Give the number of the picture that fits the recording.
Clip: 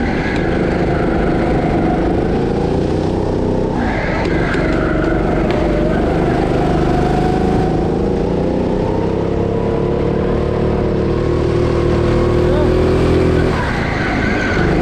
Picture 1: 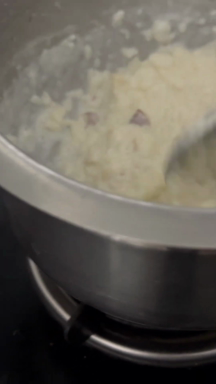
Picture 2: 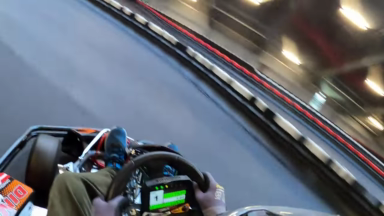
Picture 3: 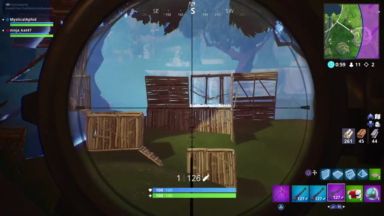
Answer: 2